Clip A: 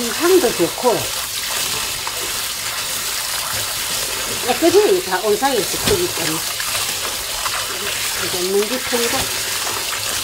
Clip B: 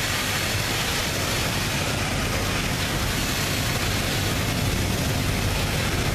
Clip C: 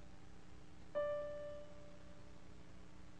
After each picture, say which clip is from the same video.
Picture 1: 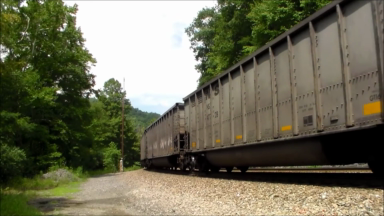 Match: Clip B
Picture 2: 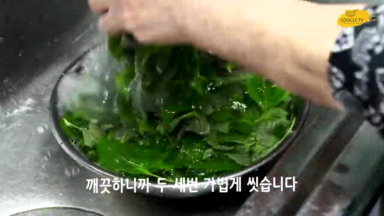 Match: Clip A